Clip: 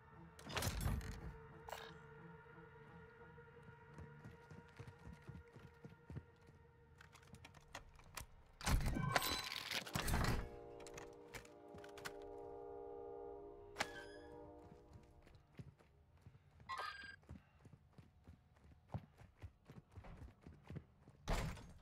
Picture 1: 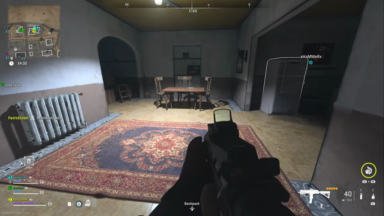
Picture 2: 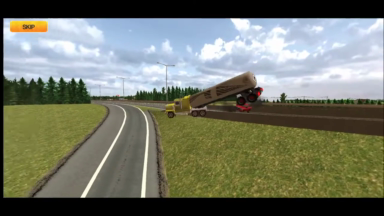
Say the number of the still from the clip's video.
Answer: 1